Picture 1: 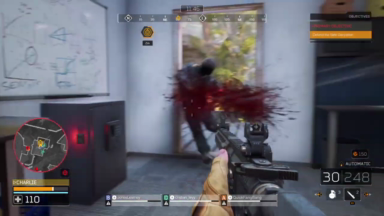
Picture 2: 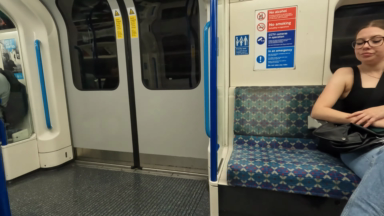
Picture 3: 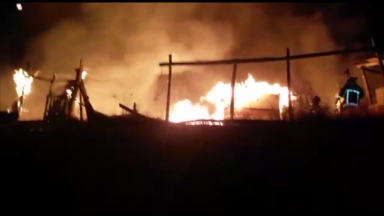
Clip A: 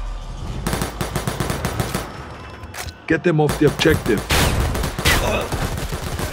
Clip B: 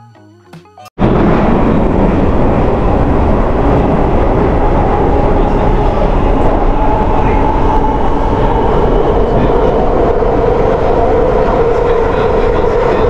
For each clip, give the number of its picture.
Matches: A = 1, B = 2